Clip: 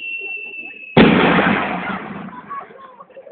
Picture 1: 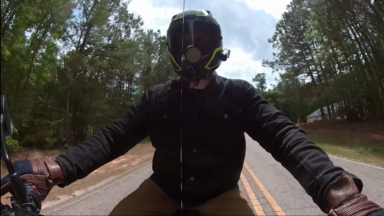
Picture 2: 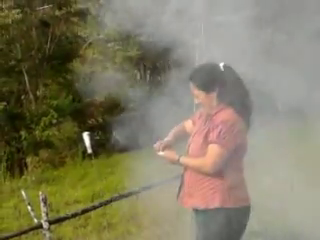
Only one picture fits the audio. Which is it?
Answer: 2